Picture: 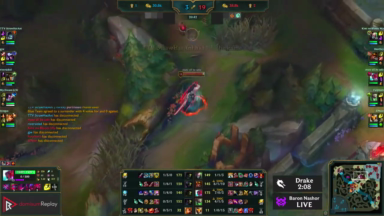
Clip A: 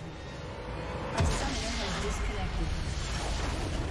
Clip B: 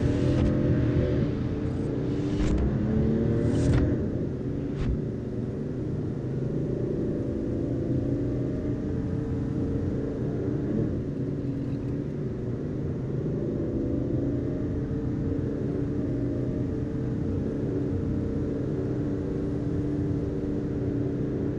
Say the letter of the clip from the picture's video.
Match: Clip A